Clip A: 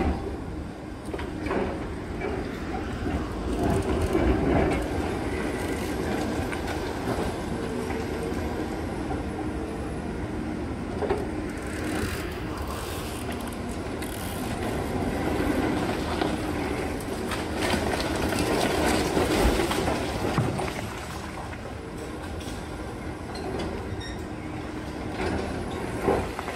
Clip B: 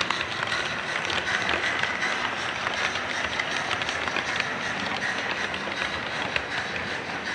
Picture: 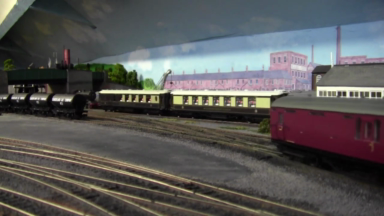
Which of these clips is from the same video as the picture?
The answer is B